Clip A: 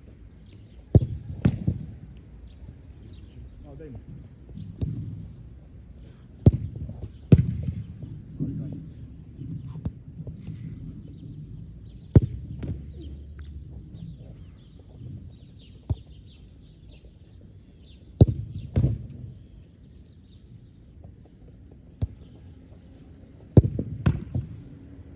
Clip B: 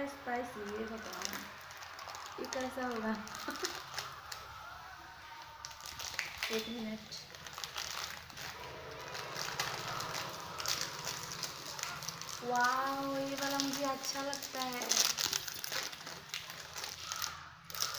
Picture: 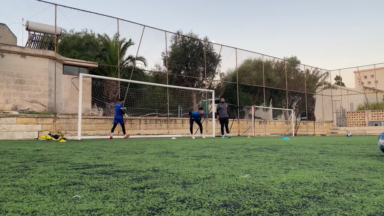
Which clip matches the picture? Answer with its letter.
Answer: A